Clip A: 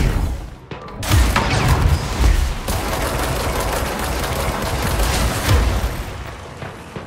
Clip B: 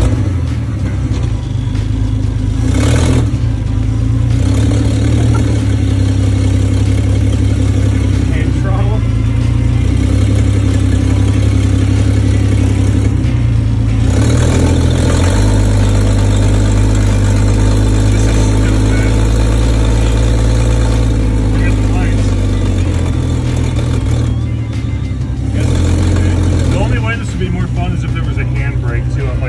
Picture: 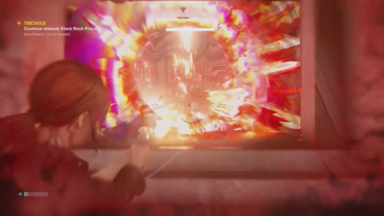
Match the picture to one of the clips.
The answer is A